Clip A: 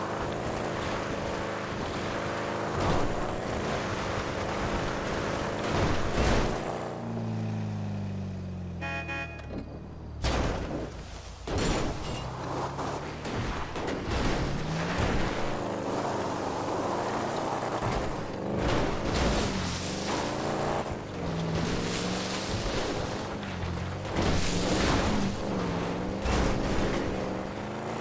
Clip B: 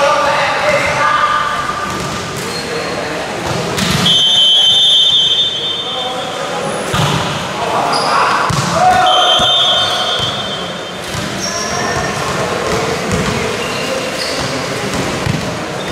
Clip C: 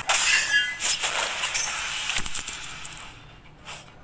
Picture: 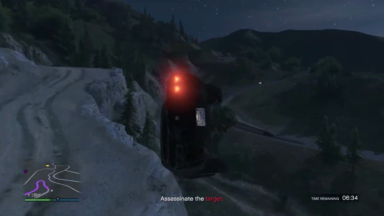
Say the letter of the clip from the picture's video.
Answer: A